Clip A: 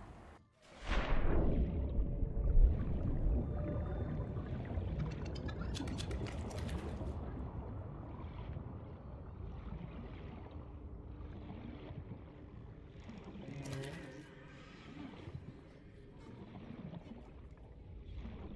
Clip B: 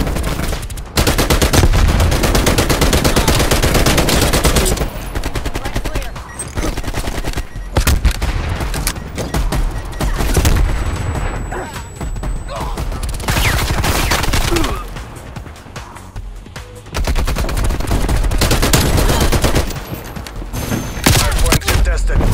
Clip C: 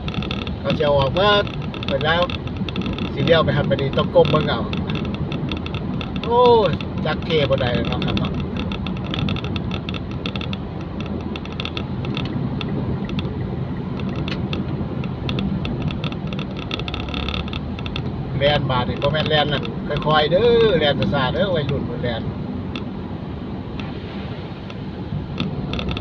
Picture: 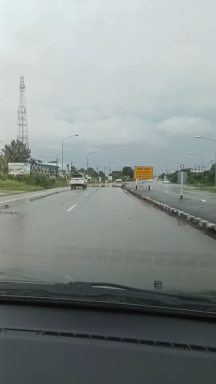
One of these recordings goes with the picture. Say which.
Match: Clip C